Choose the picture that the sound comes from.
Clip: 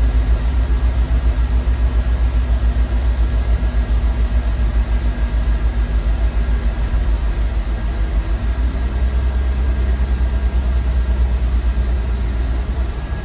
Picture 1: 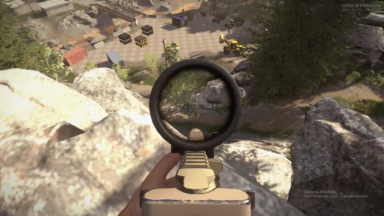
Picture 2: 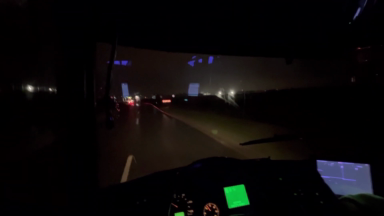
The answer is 2